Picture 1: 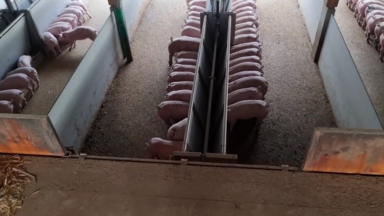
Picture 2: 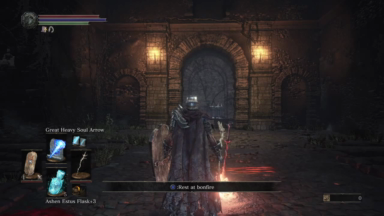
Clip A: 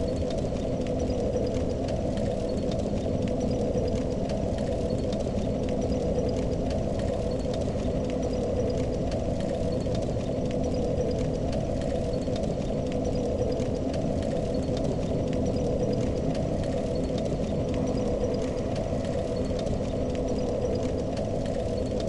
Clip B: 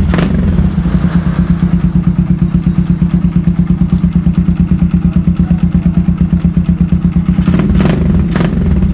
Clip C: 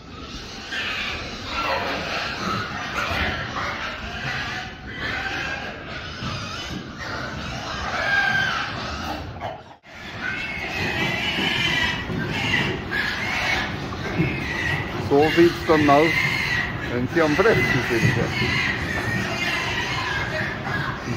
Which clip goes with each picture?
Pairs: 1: C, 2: A